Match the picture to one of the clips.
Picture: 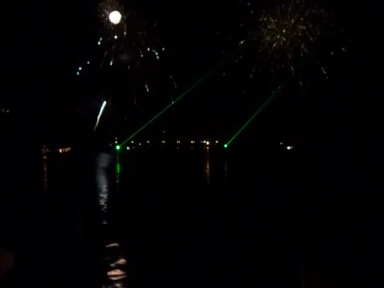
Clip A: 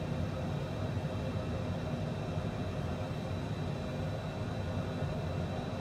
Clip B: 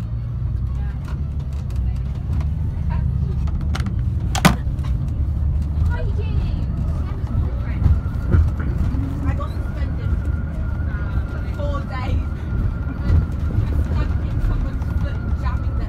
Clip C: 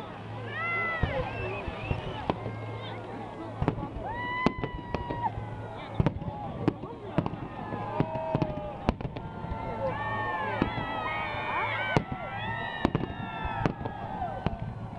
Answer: C